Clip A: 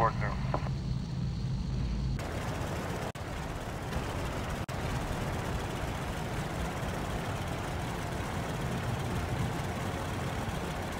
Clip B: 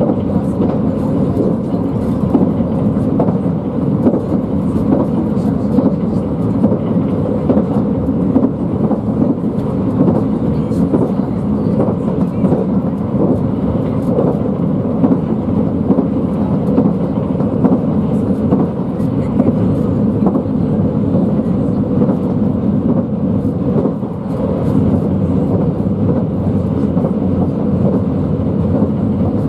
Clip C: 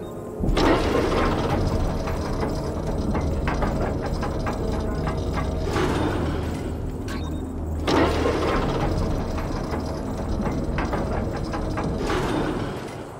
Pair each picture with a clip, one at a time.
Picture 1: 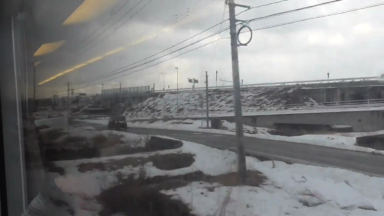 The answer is B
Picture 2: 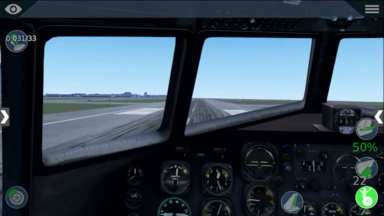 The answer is A